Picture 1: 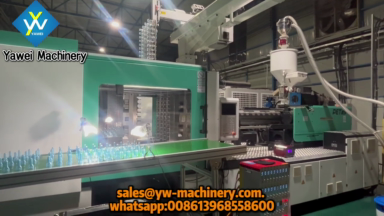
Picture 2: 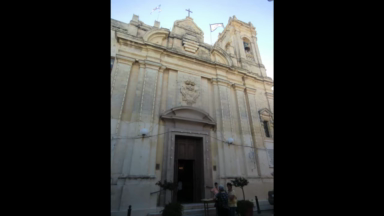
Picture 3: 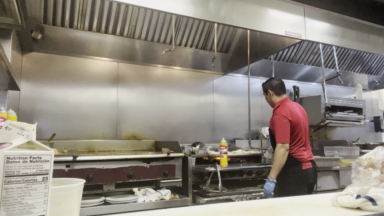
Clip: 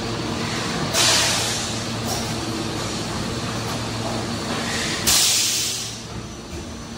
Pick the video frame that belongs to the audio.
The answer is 1